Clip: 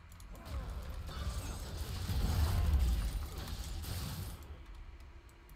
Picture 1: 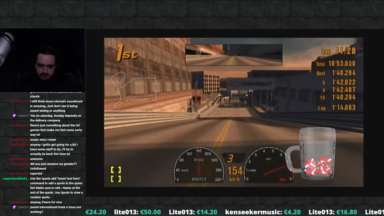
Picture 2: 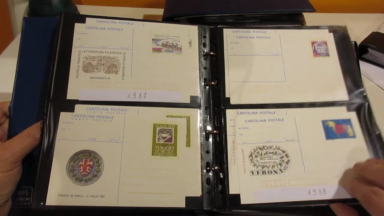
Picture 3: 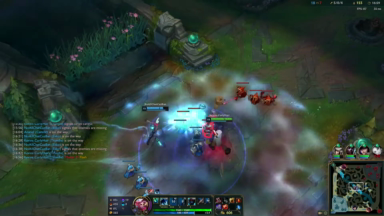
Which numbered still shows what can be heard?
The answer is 3